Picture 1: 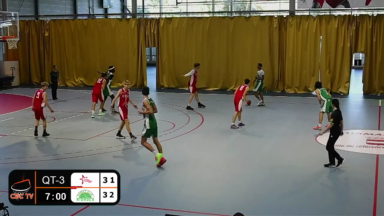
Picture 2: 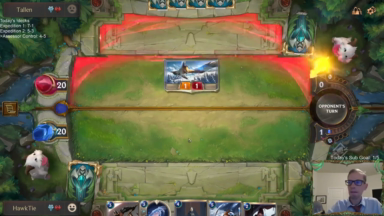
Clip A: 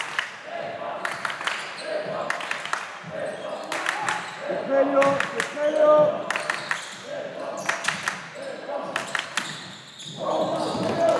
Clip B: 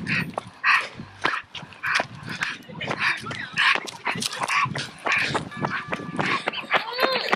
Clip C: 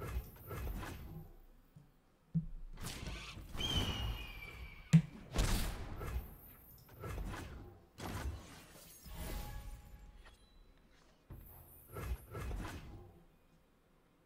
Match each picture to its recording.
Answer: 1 A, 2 C